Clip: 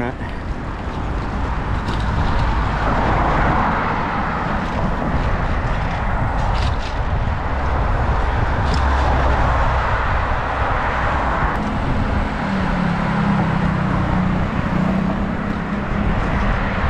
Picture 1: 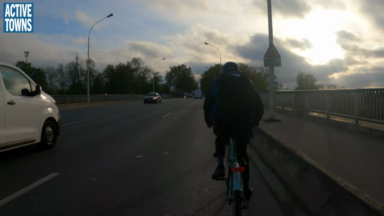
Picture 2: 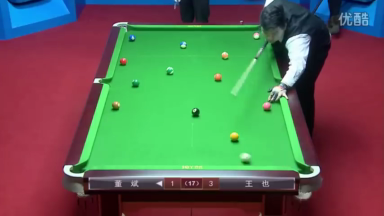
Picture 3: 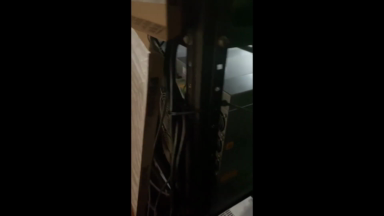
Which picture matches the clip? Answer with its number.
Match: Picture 1